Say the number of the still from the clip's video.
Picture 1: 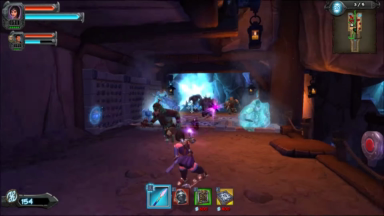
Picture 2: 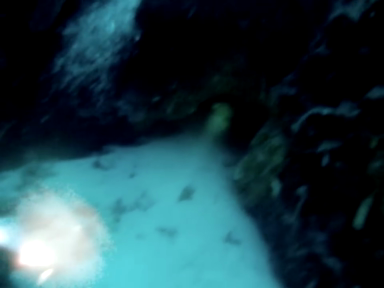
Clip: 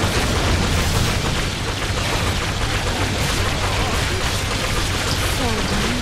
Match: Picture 1